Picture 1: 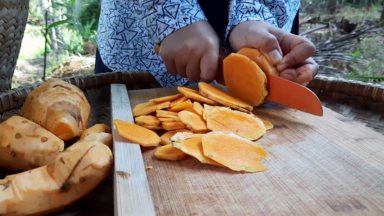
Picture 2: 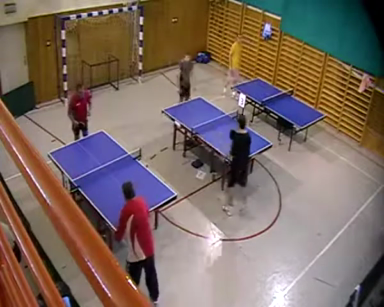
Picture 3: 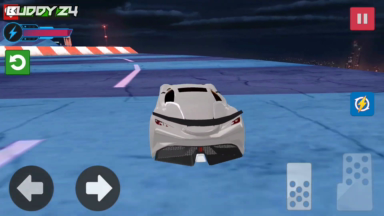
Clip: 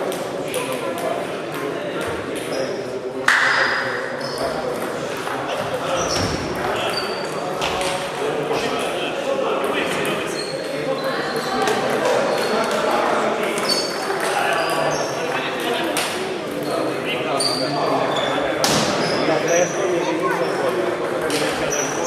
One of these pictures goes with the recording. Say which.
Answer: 2